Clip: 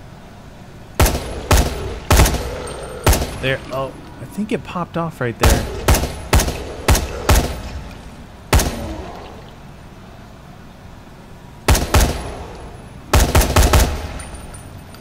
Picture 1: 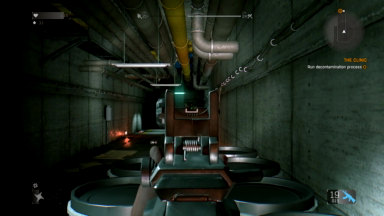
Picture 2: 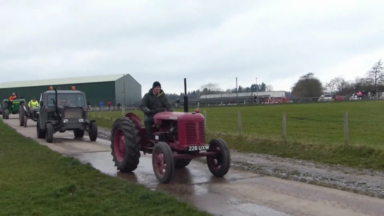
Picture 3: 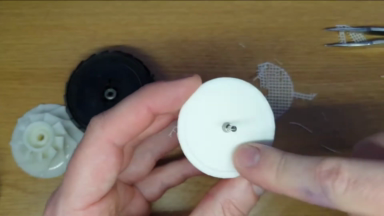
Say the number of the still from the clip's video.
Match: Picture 1